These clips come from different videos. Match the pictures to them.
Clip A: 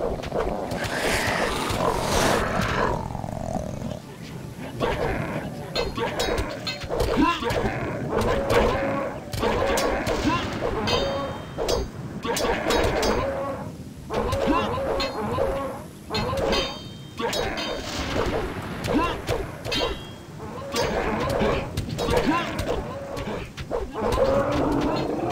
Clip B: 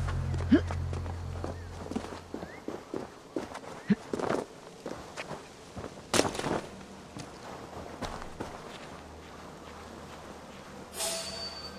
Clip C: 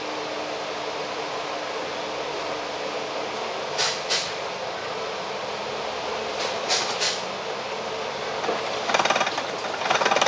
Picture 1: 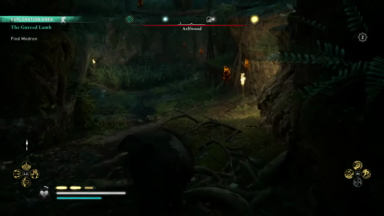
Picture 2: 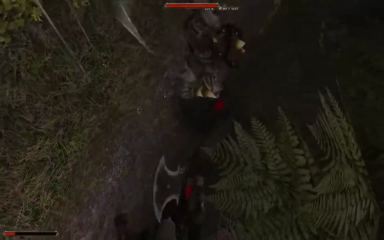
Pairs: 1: B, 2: A